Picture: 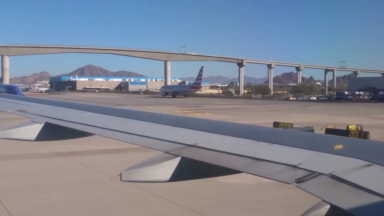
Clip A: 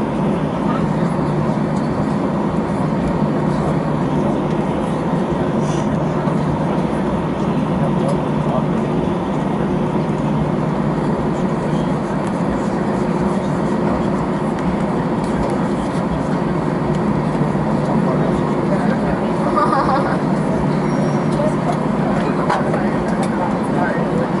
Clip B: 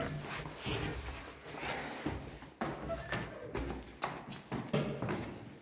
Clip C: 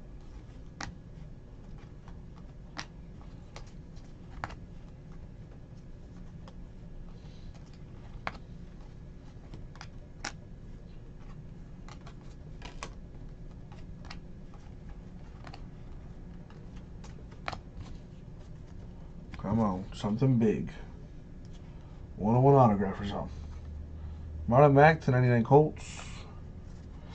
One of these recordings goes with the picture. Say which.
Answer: A